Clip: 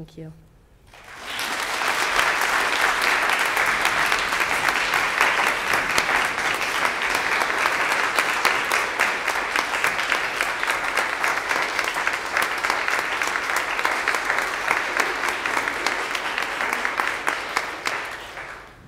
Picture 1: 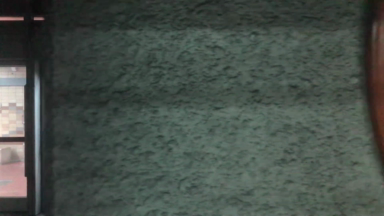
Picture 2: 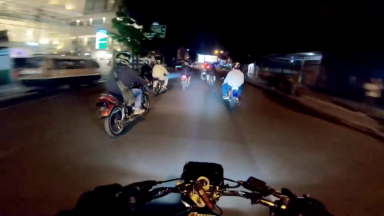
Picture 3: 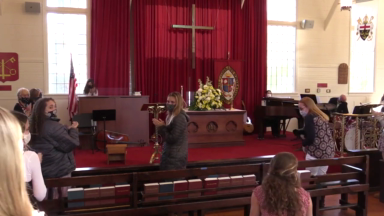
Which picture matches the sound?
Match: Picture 3